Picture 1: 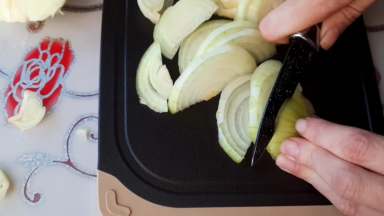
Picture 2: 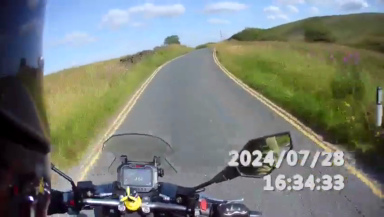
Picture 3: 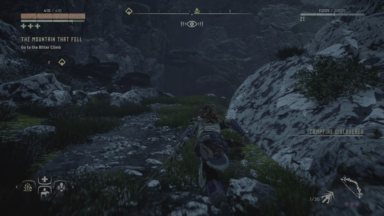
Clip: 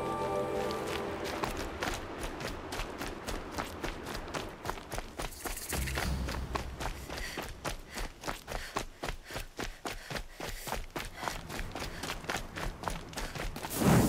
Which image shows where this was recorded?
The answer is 3